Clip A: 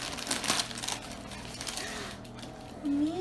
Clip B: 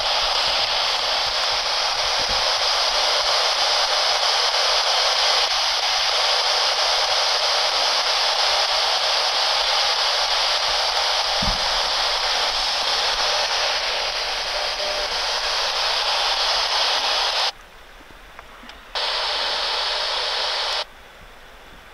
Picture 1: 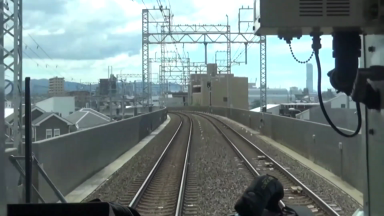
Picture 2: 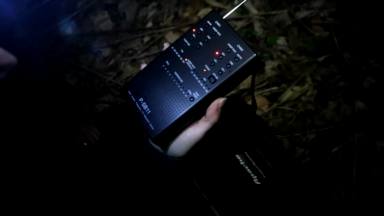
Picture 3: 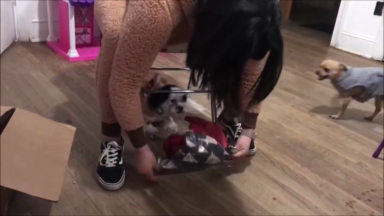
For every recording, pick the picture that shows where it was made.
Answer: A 3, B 2